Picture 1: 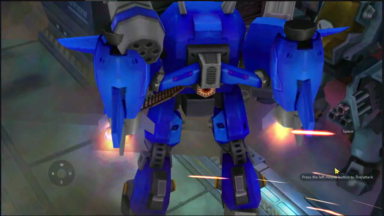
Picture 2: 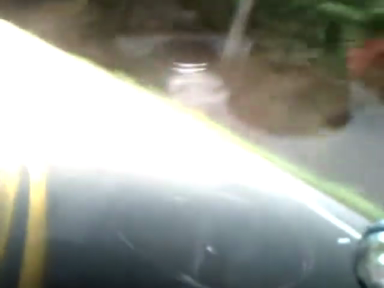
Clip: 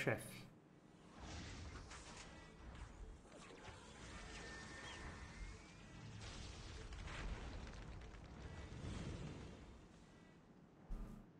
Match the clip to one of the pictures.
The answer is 1